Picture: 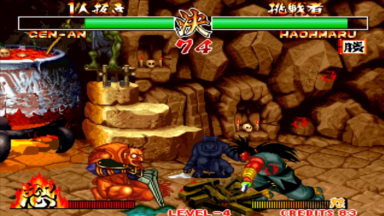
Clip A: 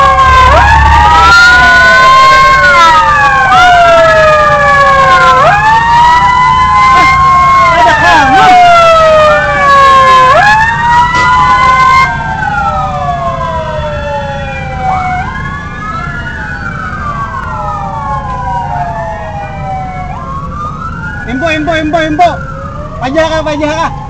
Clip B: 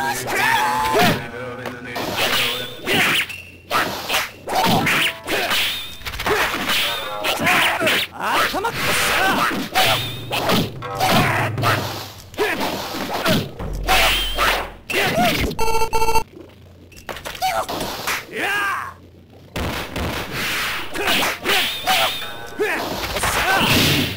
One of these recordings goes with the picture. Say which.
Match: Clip B